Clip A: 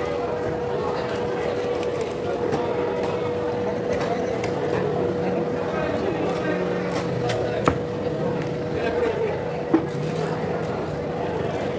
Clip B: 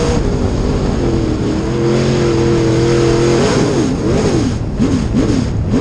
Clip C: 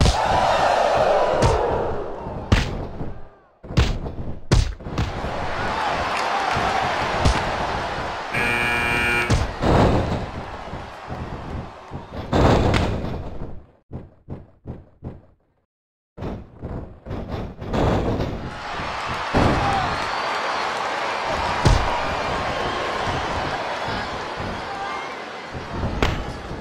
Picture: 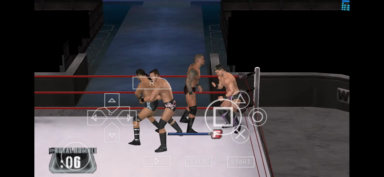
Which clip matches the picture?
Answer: C